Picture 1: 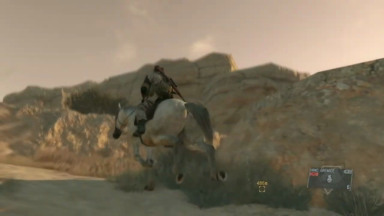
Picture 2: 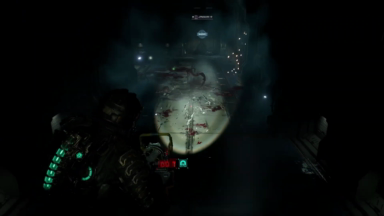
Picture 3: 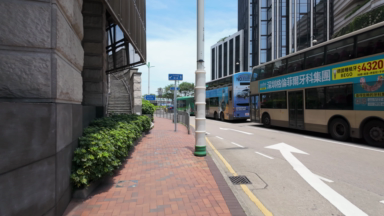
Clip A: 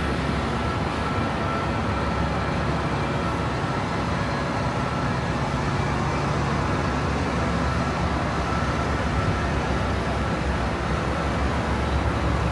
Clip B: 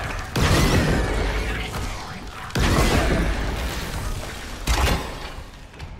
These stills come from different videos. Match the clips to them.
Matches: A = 3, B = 2